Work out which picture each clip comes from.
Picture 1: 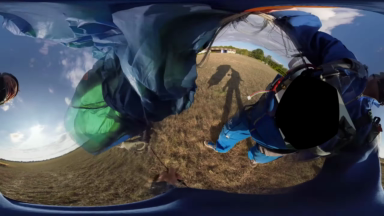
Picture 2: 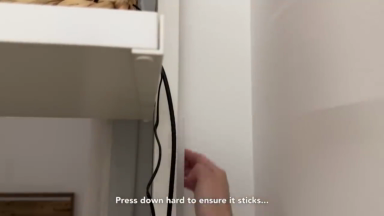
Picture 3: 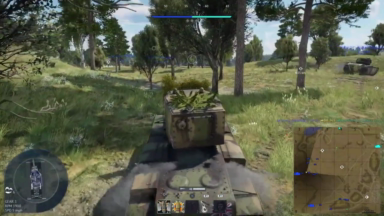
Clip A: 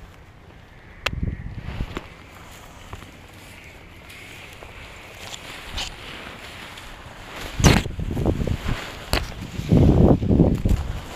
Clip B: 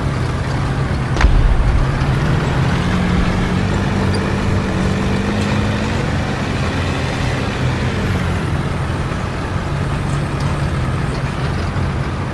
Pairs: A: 1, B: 3